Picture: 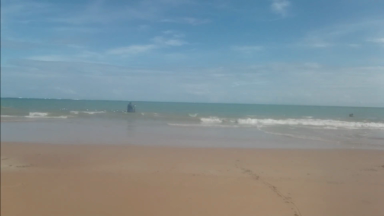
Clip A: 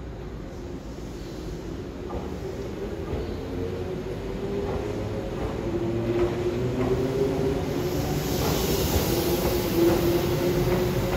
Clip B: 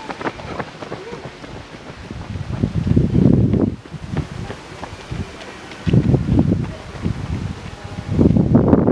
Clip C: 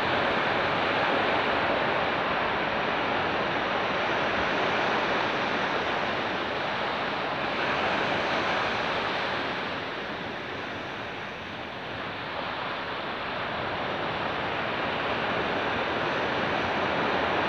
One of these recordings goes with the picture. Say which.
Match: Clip C